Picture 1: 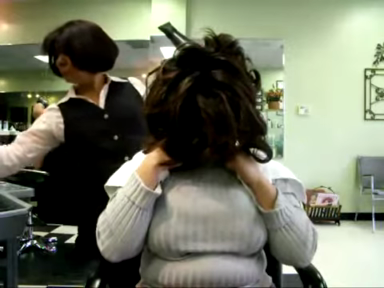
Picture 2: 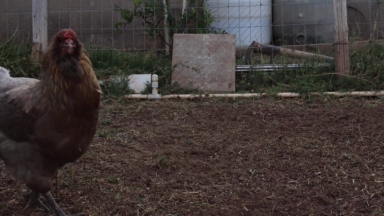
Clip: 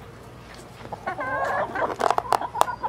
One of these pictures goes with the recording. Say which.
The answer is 2